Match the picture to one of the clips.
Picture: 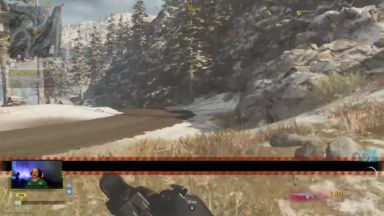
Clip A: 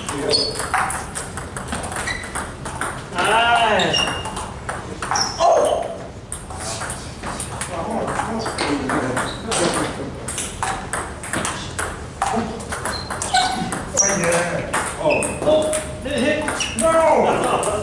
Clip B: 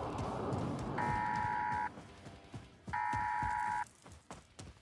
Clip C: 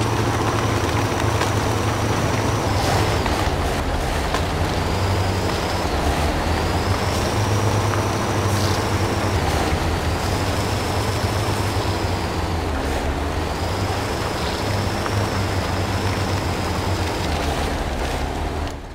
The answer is B